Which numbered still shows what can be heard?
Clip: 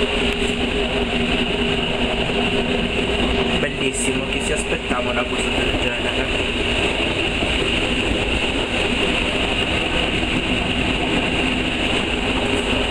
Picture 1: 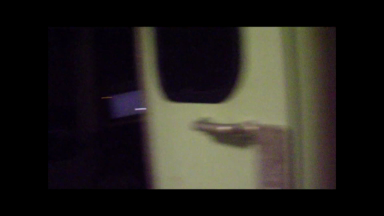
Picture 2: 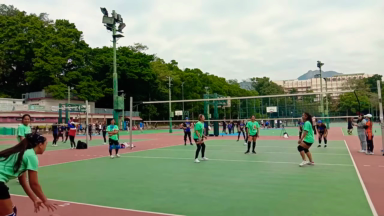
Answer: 1